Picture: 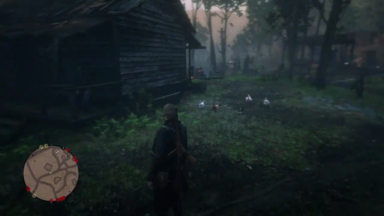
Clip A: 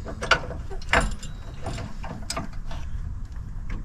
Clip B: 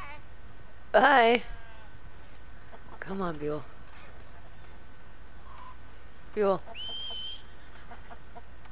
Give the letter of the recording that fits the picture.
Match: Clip B